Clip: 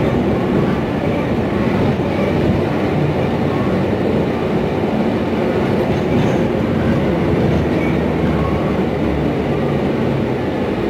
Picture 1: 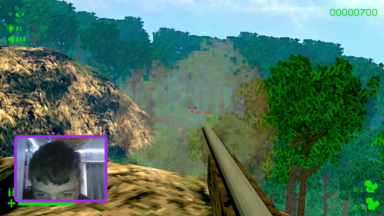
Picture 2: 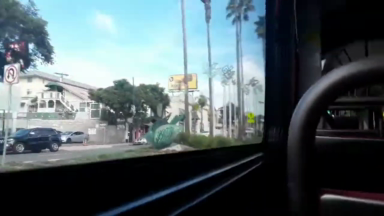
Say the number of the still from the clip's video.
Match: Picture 2